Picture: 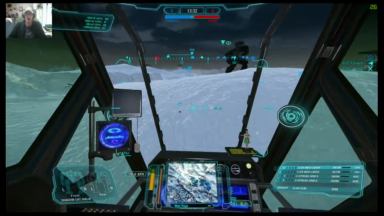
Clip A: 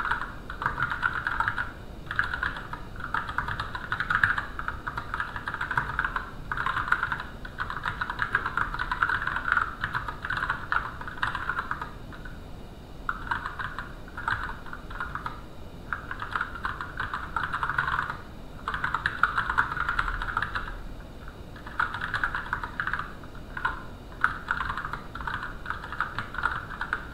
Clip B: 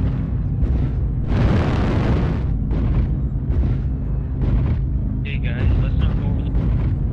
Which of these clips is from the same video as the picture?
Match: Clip B